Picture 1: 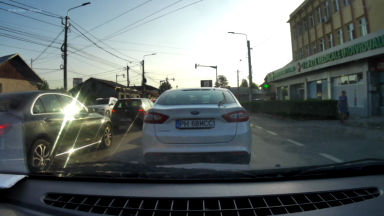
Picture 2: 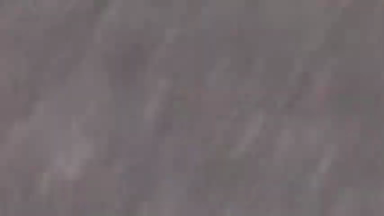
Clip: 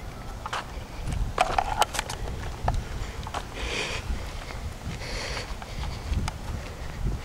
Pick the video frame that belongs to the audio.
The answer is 2